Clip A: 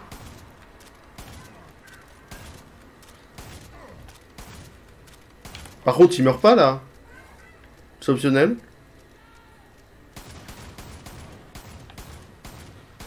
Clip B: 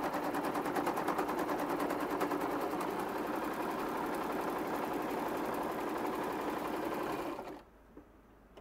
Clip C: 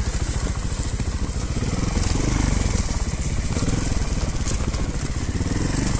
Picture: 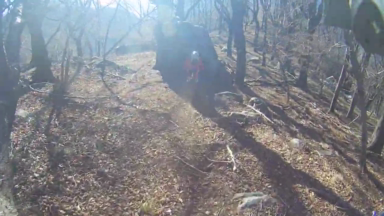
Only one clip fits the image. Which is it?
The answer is C